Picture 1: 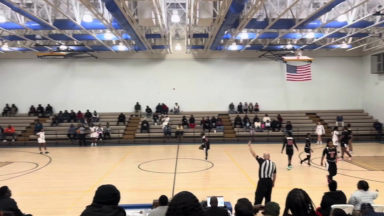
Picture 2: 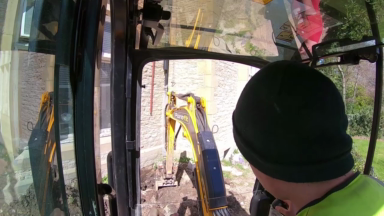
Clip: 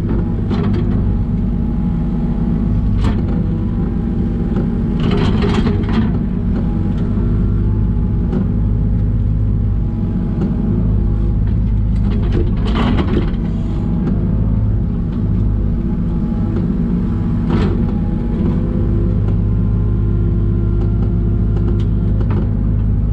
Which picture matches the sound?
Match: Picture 2